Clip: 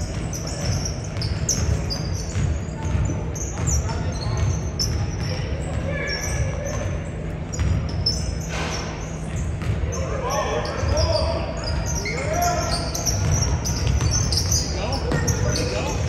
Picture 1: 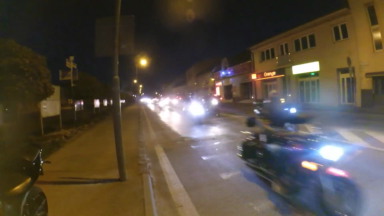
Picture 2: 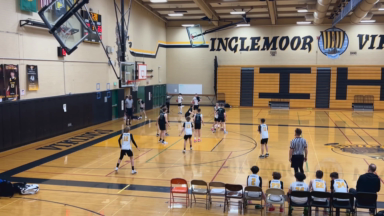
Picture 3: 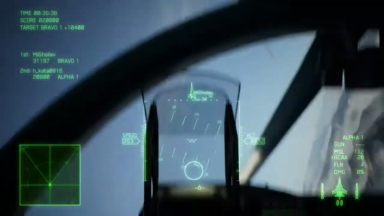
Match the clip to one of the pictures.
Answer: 2